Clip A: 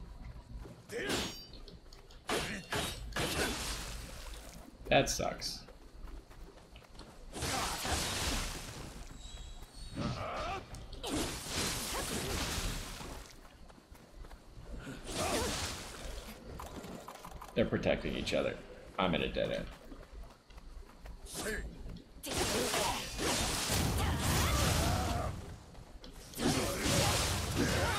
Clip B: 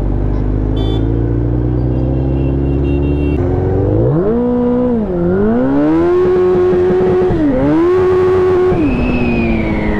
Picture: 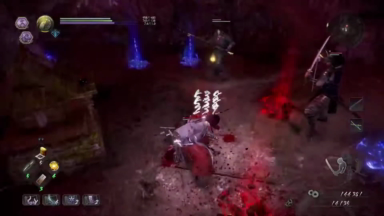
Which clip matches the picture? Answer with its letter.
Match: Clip A